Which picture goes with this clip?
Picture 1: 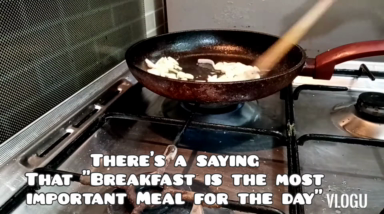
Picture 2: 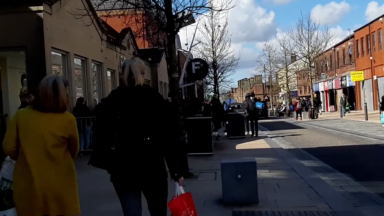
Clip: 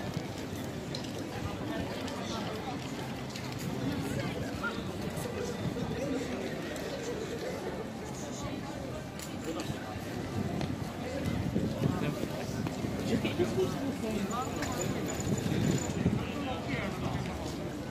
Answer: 2